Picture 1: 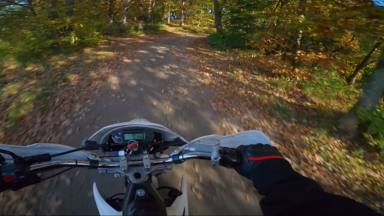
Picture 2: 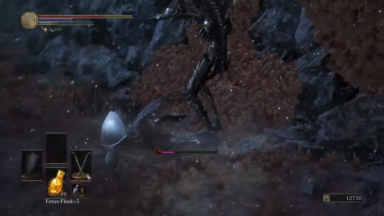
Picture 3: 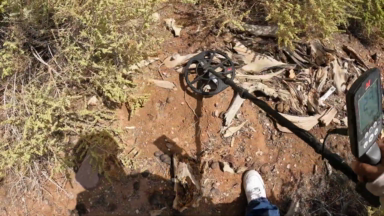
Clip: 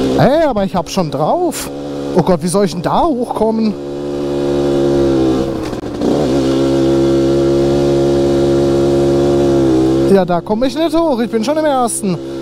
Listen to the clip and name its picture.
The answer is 1